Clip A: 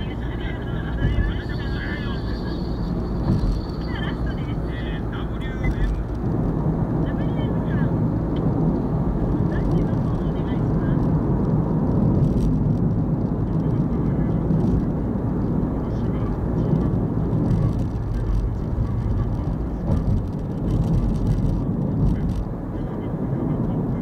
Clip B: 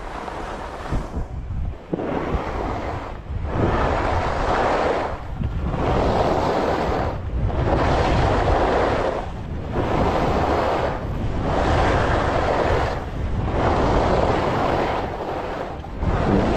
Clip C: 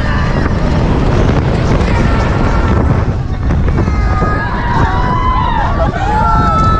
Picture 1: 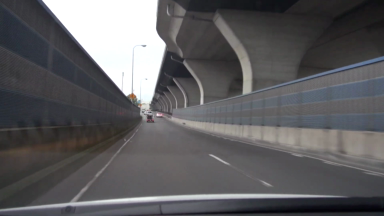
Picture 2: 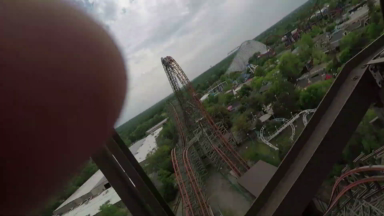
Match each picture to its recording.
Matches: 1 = A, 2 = C